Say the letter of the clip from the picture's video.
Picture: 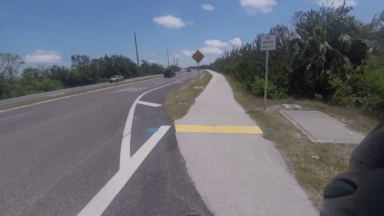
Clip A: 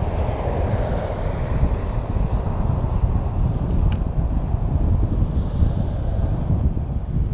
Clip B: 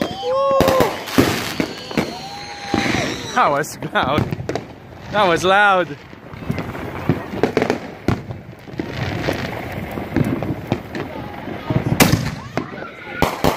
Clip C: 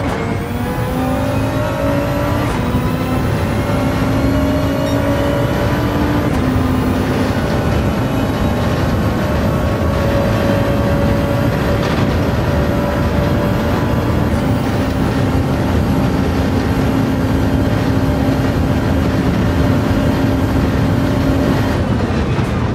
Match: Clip A